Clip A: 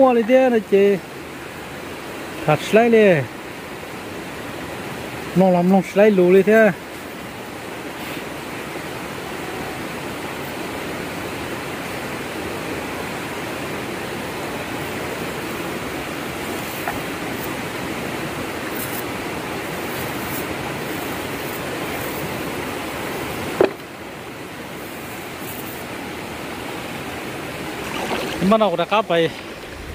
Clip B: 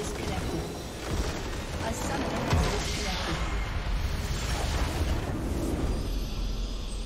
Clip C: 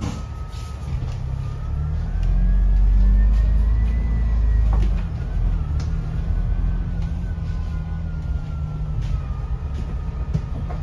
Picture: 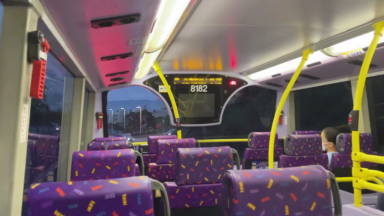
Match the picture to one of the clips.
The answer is C